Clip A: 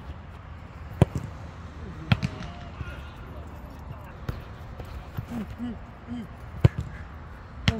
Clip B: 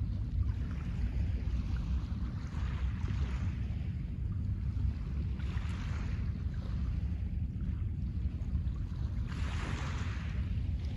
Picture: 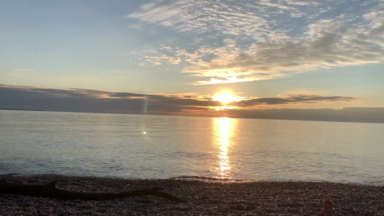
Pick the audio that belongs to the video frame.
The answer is B